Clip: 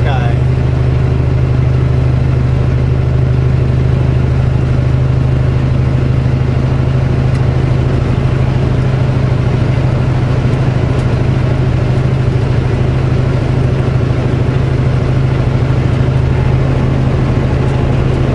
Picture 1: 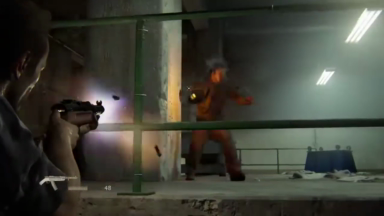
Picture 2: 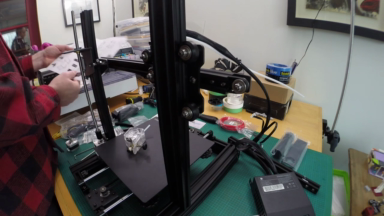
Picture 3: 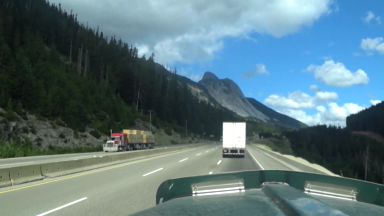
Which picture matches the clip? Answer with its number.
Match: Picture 3